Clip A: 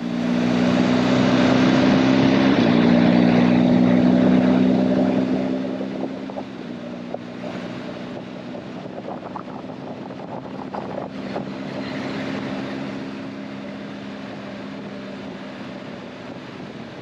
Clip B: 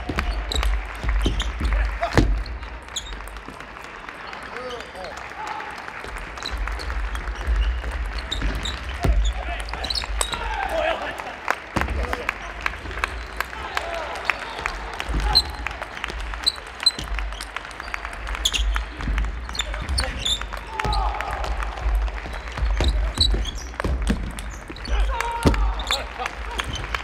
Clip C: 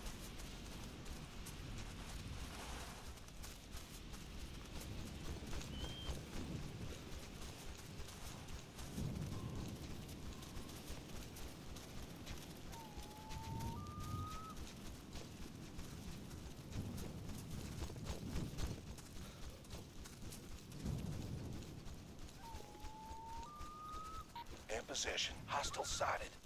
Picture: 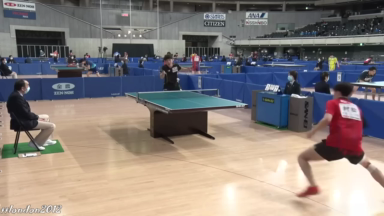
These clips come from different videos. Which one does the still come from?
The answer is B